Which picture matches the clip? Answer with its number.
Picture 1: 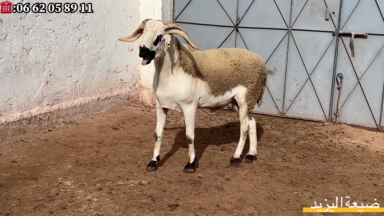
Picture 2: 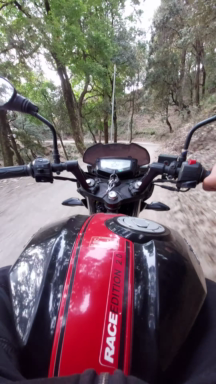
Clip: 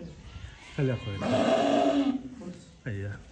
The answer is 1